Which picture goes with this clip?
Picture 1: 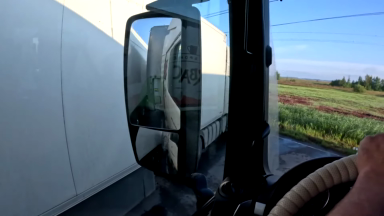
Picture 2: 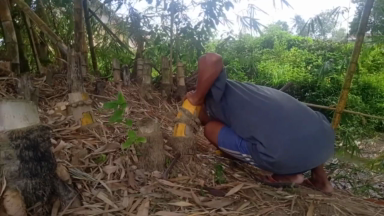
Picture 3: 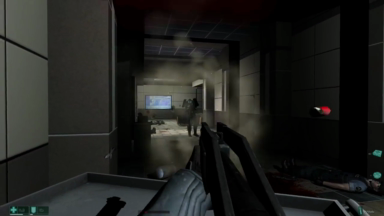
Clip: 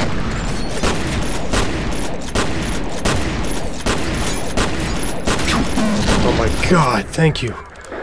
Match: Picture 3